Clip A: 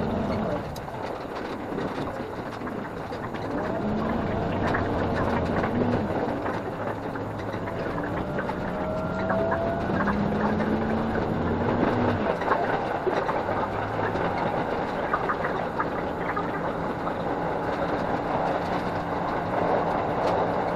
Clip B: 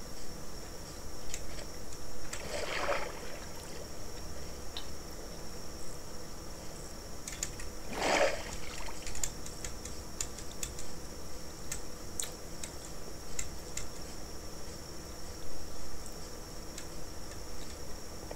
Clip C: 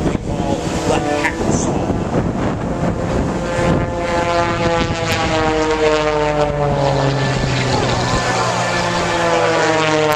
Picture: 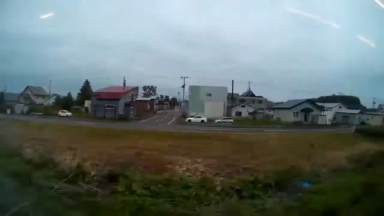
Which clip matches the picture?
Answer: A